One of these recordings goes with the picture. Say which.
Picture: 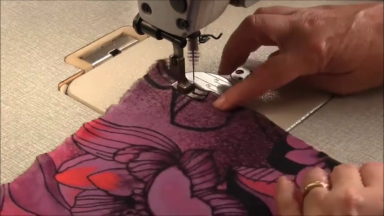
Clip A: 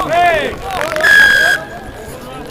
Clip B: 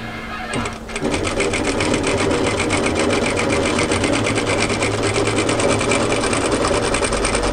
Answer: B